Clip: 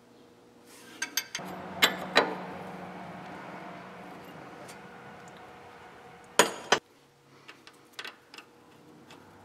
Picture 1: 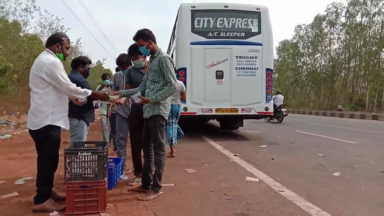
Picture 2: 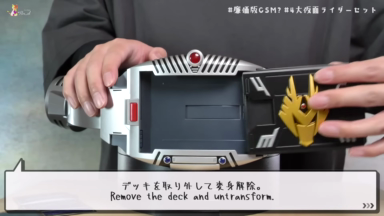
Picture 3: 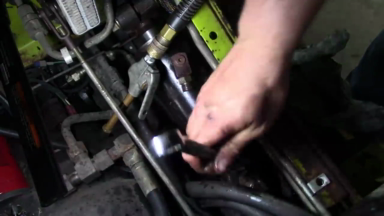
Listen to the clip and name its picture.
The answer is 3